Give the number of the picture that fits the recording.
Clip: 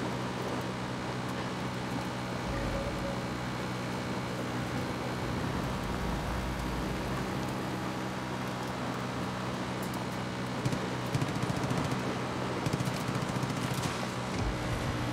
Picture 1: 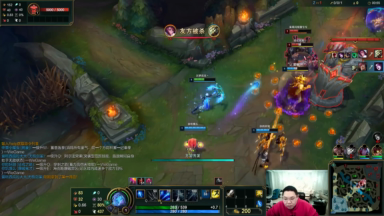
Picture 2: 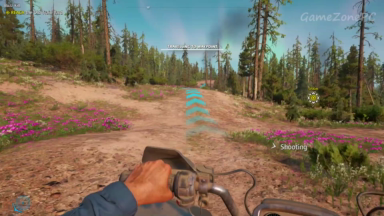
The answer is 2